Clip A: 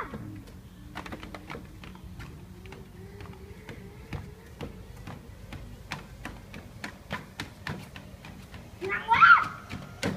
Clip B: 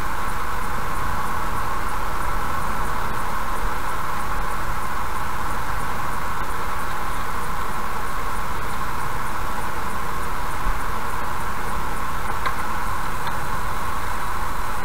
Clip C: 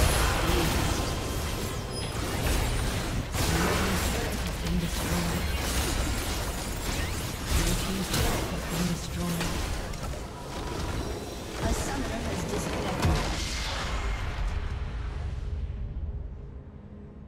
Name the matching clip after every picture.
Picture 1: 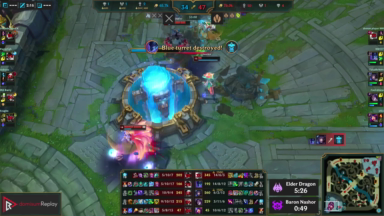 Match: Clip C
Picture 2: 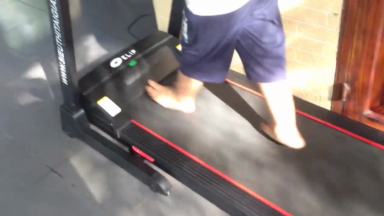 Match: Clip A